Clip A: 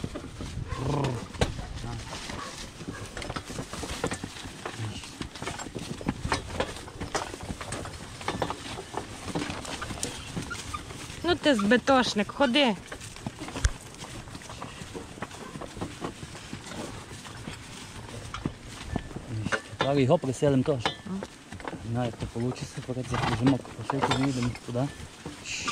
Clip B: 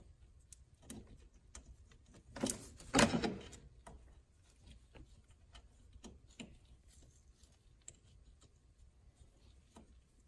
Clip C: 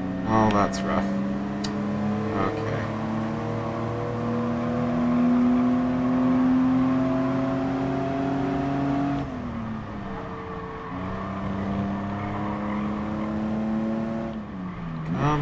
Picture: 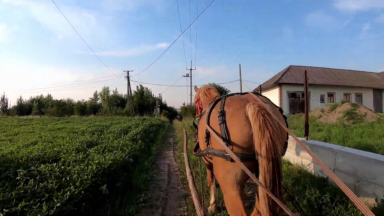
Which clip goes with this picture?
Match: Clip A